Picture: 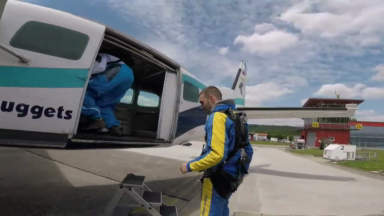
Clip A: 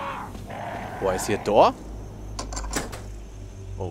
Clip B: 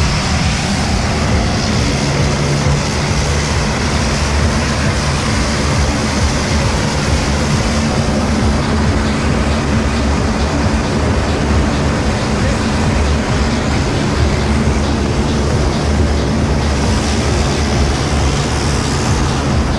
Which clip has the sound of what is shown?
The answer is B